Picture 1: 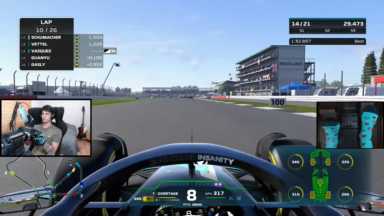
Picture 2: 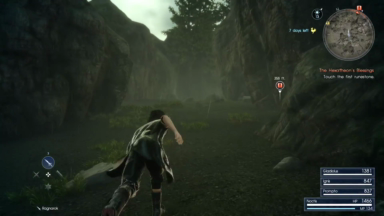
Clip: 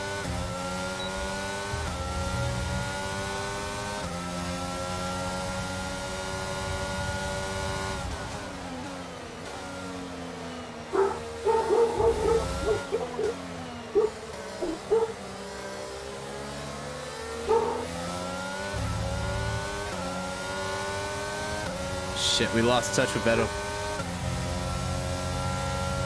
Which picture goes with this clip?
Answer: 1